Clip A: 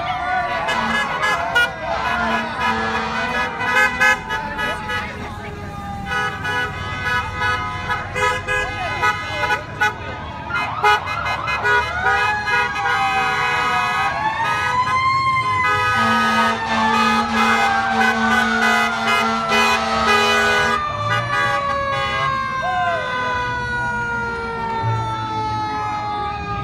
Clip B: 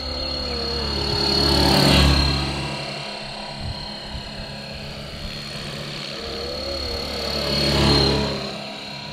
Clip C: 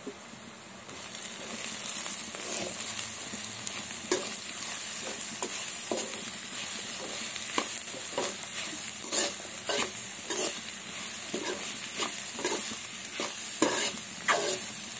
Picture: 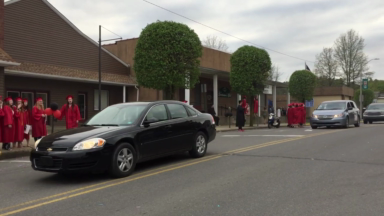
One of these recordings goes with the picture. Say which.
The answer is A